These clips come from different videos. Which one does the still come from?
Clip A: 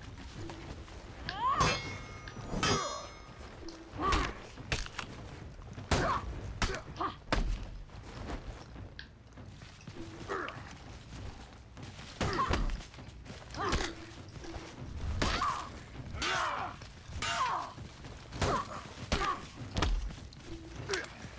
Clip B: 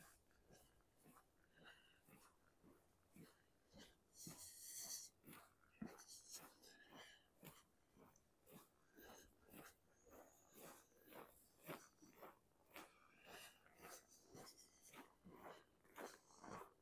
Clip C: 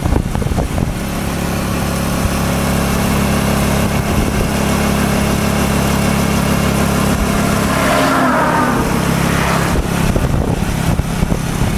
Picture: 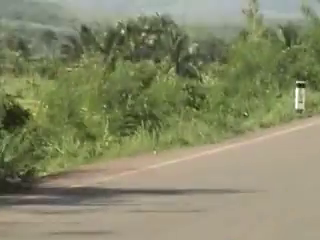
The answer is C